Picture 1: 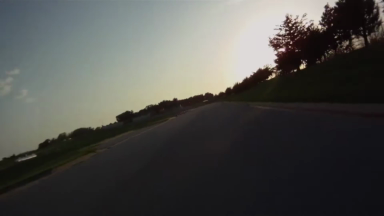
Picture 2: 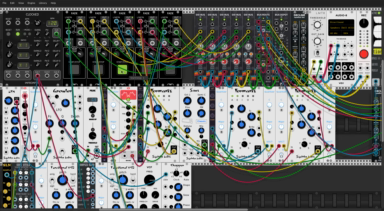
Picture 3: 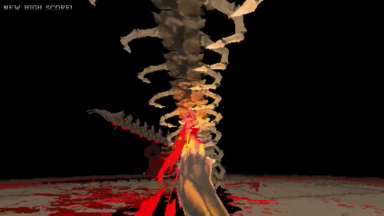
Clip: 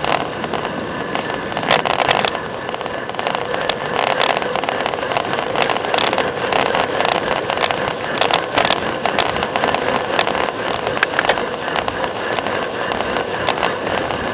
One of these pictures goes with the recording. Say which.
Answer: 1